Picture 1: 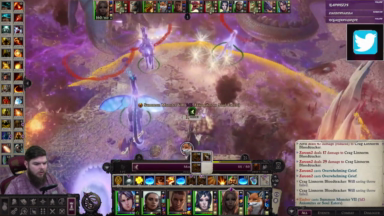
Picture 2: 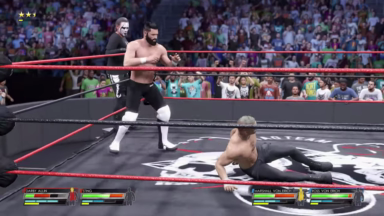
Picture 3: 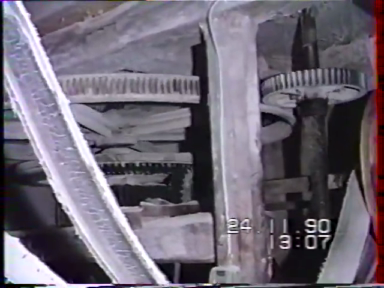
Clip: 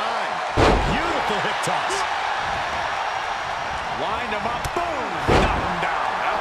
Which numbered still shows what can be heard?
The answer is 2